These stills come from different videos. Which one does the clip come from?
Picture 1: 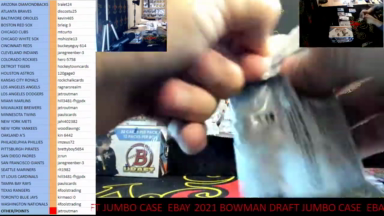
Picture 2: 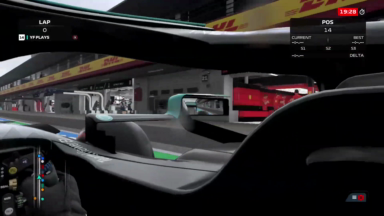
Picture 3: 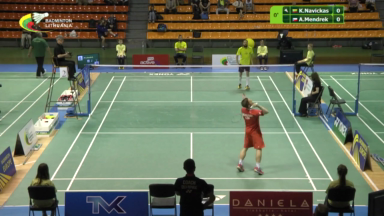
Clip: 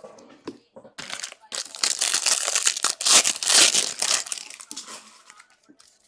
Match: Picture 1